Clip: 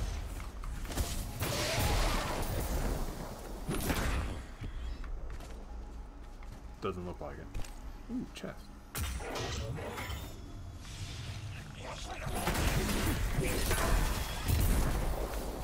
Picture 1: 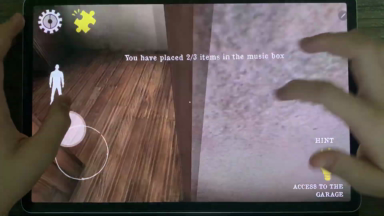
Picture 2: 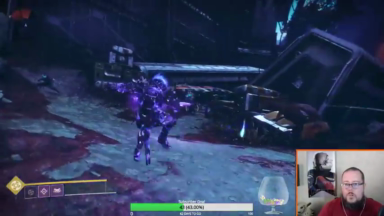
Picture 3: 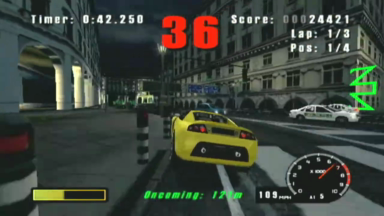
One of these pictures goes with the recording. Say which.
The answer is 2